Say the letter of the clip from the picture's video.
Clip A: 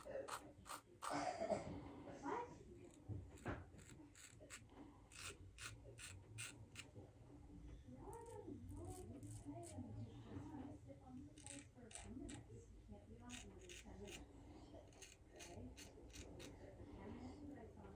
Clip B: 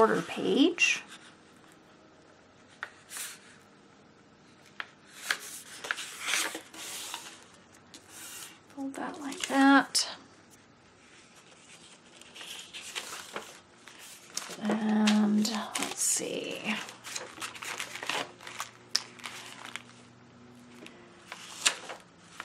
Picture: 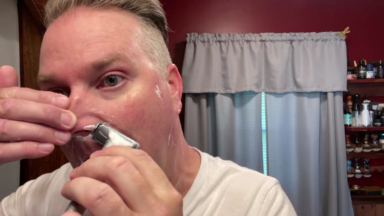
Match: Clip A